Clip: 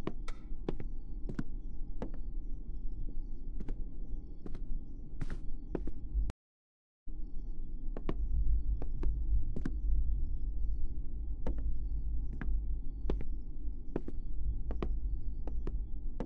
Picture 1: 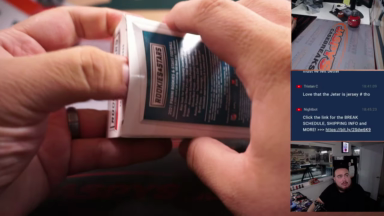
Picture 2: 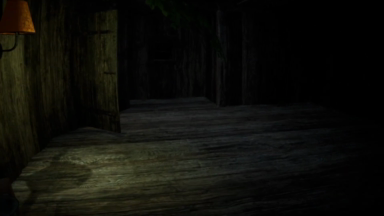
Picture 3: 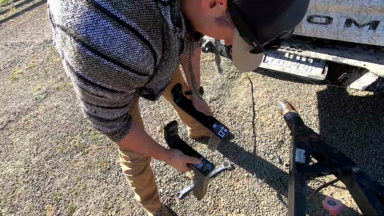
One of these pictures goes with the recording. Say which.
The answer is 2